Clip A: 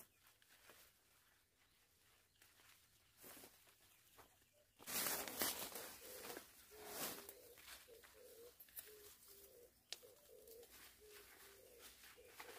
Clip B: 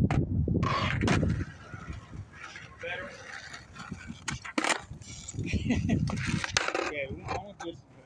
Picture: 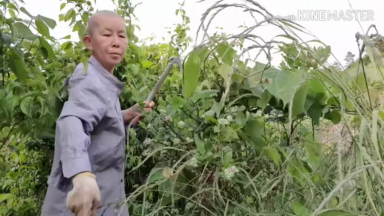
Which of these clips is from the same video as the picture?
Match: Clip A